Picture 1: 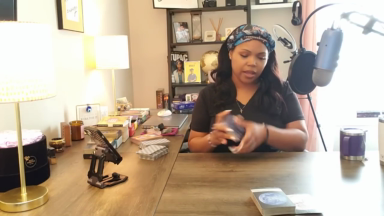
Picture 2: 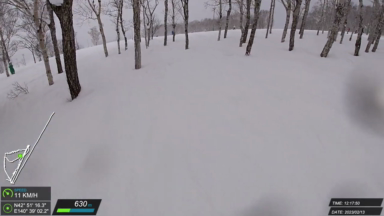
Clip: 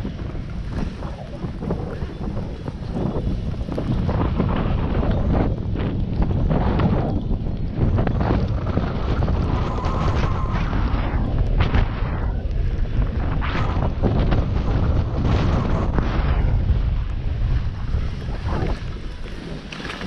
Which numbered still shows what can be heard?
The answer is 2